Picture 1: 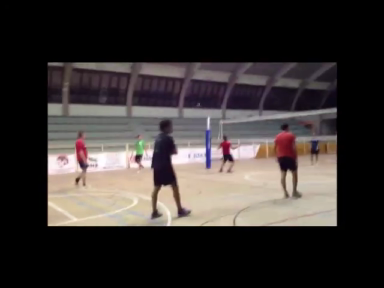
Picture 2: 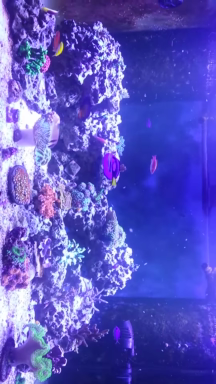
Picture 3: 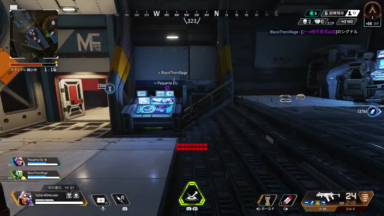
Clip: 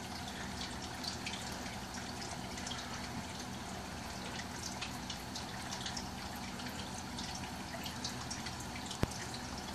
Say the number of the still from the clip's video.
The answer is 2